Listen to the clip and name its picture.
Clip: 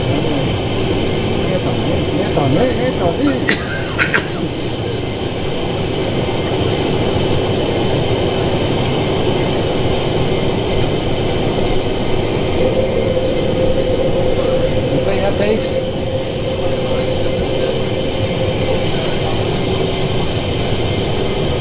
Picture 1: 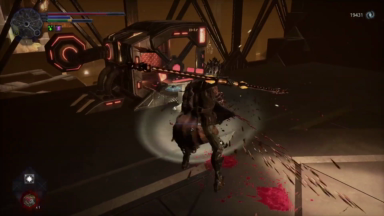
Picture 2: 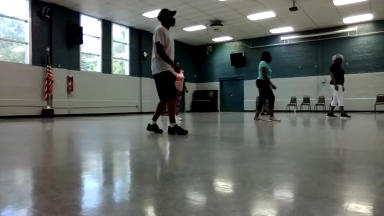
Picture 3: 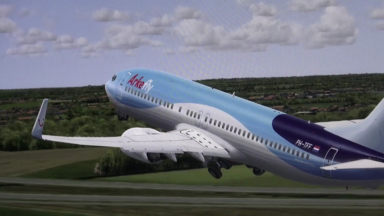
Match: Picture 3